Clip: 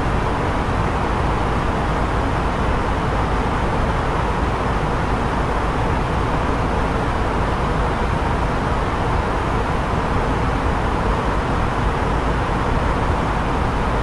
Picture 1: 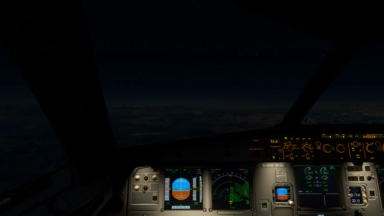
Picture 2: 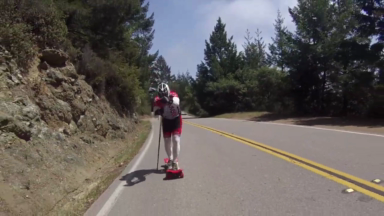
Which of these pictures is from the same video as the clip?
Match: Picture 1